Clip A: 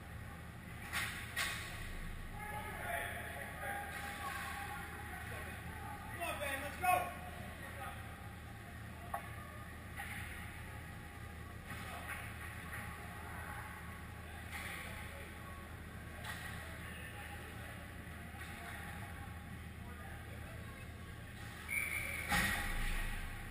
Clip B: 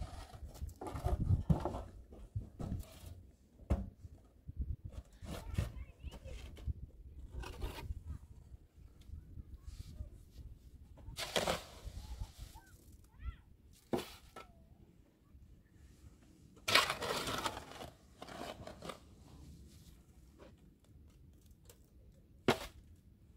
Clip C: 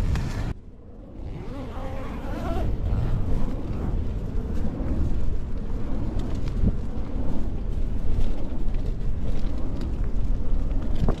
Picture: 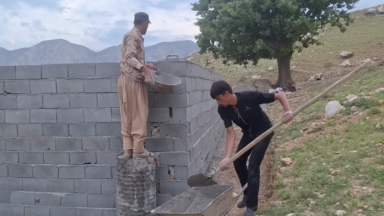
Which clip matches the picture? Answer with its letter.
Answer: B